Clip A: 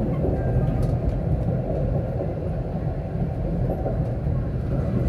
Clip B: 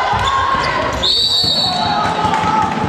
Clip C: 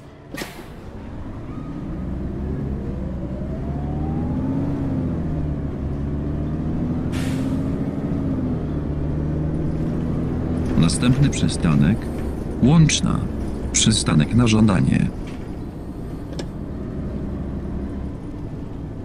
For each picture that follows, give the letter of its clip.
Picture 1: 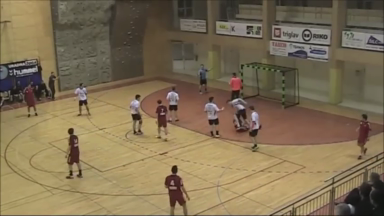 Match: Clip B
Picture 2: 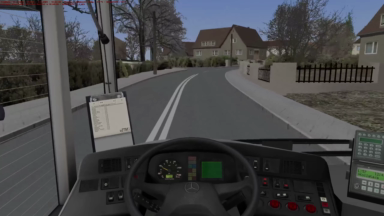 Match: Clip C